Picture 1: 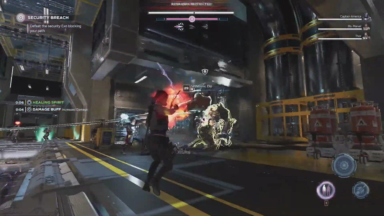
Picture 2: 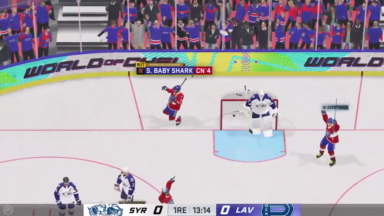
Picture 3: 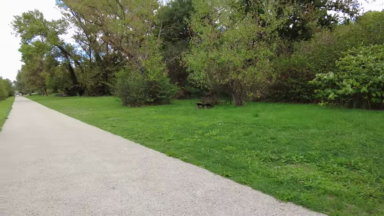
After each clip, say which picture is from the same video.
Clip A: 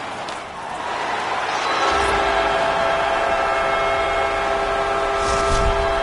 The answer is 2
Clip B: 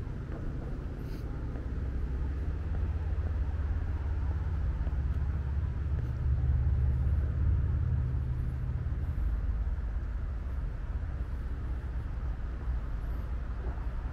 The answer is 3